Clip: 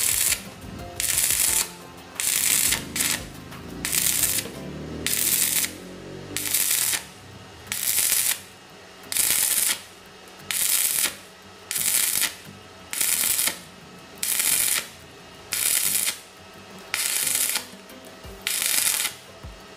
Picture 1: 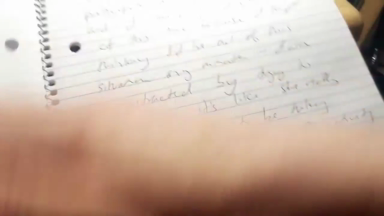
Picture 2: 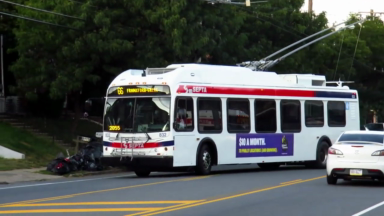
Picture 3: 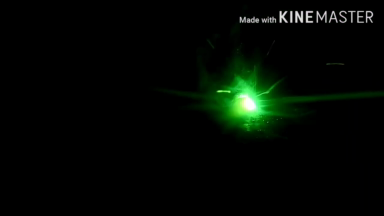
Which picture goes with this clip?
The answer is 3